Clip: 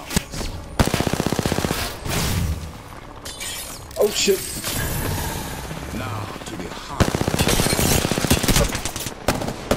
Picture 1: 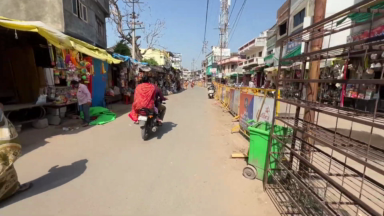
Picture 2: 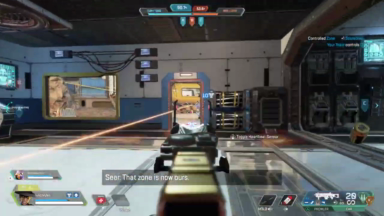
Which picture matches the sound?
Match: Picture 2